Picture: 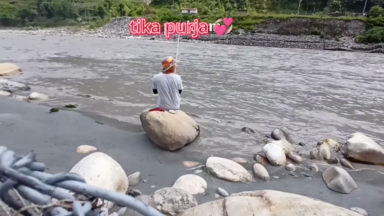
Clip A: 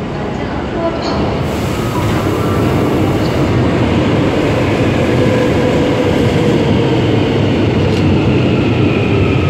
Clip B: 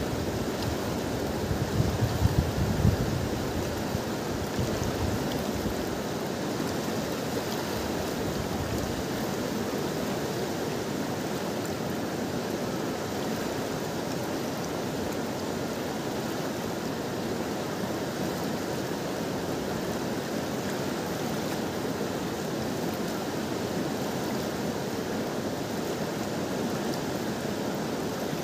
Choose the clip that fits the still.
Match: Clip B